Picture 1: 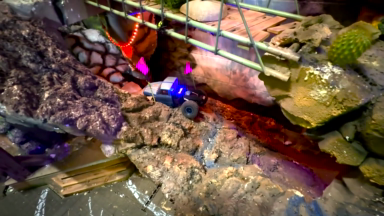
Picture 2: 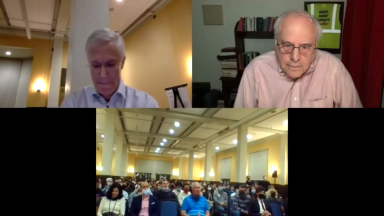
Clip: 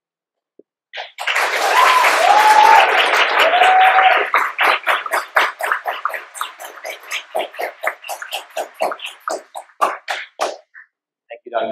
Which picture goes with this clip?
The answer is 2